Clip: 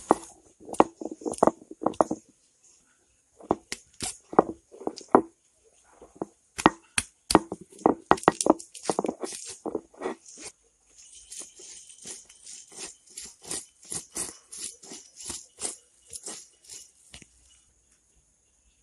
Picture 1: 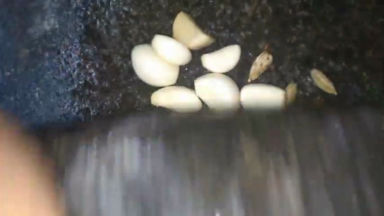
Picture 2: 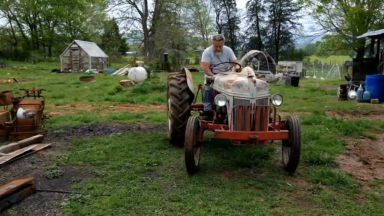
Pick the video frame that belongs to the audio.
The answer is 1